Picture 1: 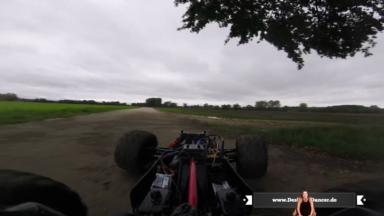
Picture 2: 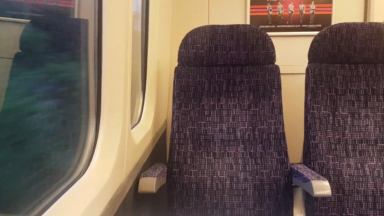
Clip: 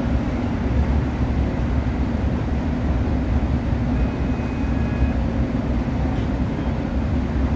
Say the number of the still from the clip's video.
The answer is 2